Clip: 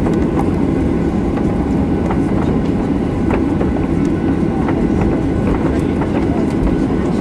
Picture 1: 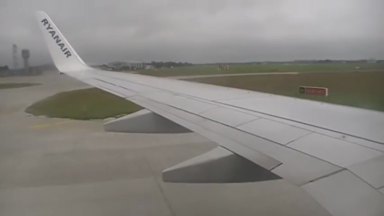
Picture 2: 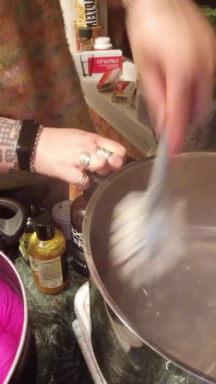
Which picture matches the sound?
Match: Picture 1